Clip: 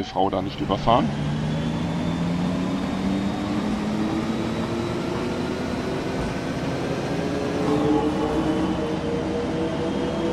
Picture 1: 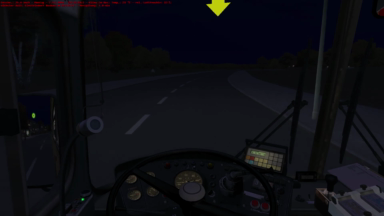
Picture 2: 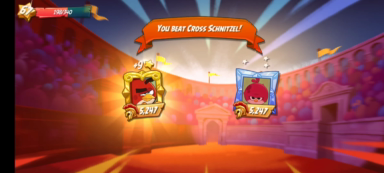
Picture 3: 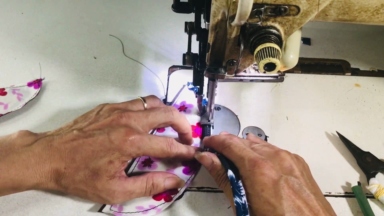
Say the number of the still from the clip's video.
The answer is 1